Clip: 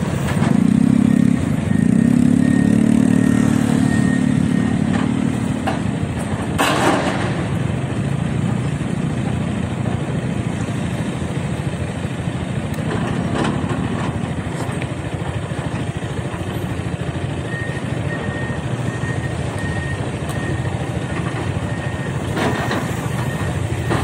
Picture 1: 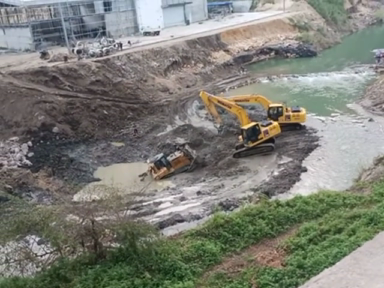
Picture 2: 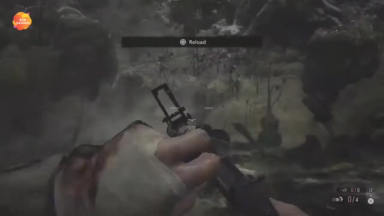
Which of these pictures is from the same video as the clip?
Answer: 1